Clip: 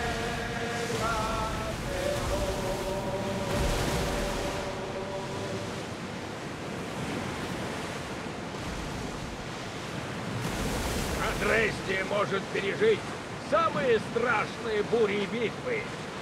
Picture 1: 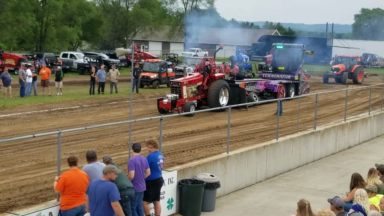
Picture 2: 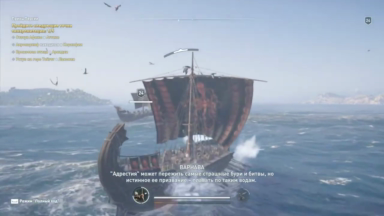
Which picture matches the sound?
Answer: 2